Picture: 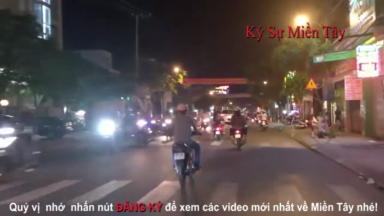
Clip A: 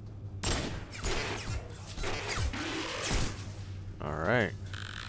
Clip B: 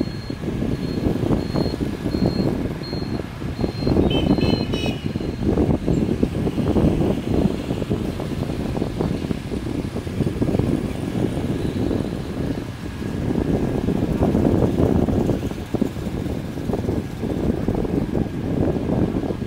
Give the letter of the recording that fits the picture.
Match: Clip B